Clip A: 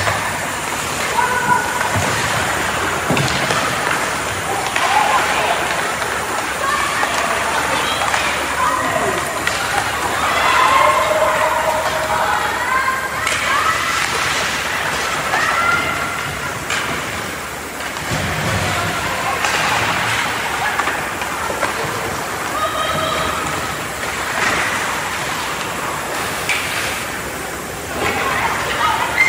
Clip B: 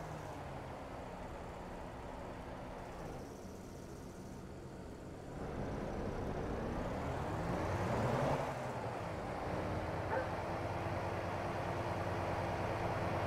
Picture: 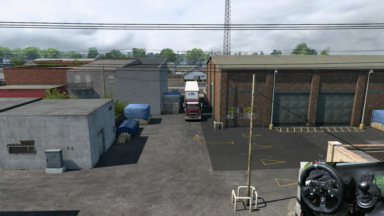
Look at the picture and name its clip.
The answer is B